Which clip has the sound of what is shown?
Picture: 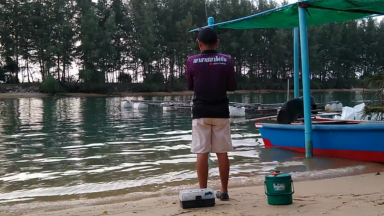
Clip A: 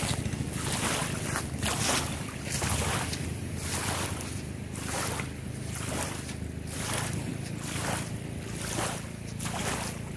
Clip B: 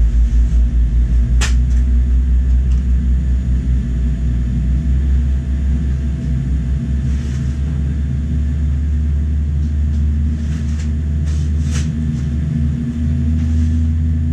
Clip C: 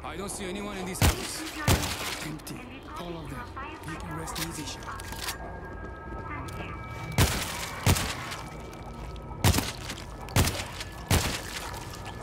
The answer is A